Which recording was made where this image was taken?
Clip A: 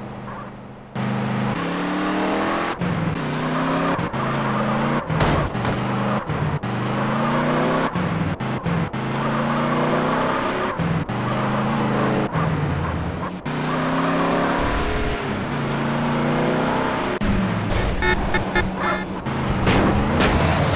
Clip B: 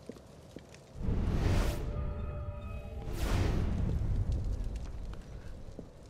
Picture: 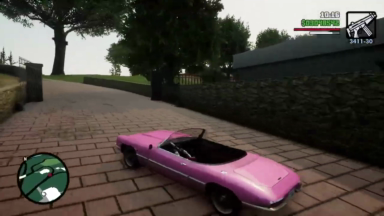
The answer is A